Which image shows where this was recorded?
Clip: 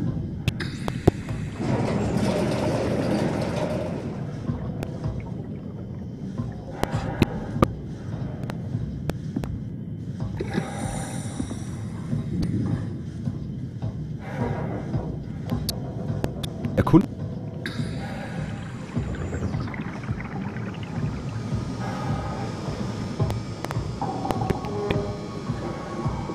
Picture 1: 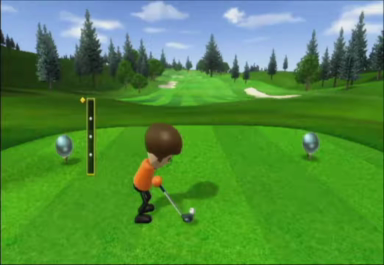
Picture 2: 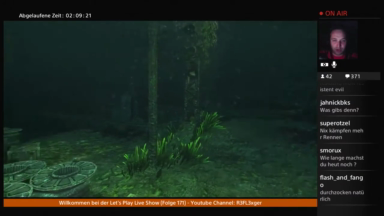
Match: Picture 2